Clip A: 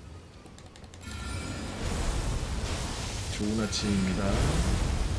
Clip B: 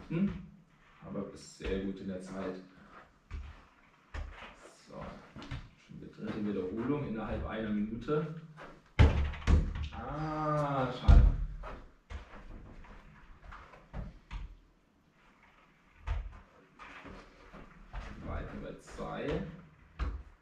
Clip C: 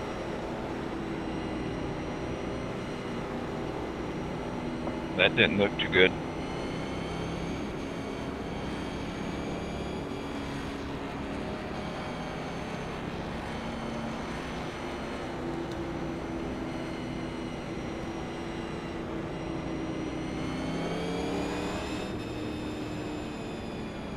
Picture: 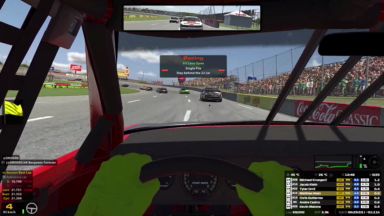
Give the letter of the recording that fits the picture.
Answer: C